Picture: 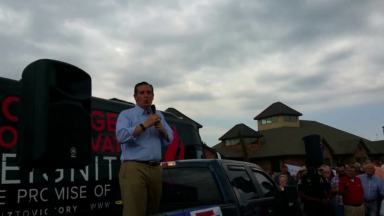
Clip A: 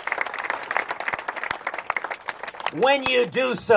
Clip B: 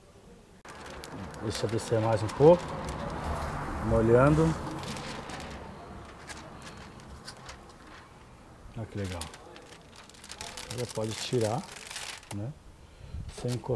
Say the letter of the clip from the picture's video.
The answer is A